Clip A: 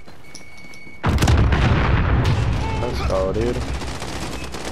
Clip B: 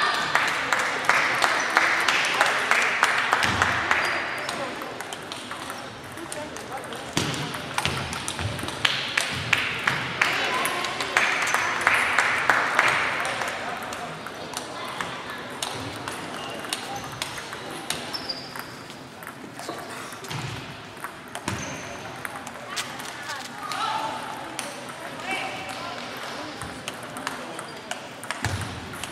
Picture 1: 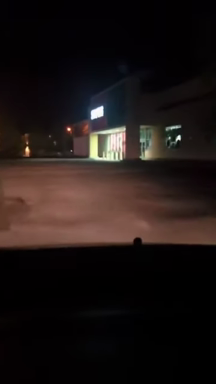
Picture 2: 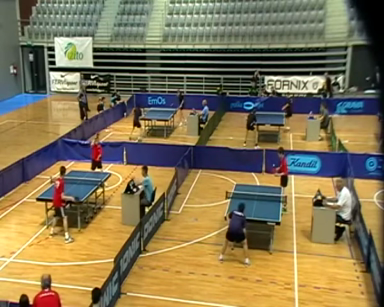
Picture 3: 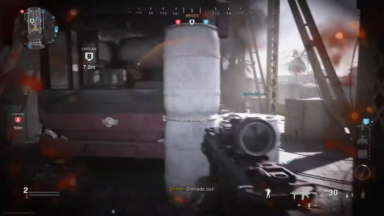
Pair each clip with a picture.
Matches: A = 3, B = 2